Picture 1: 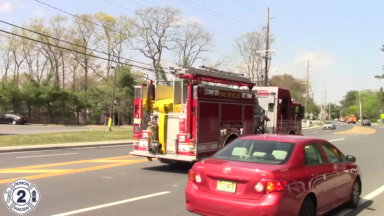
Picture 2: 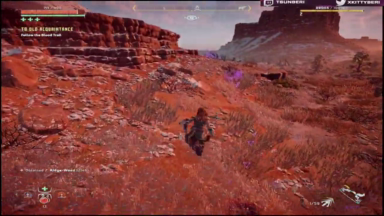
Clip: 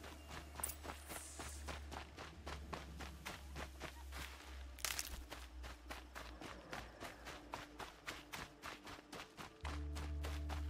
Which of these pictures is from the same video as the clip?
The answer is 2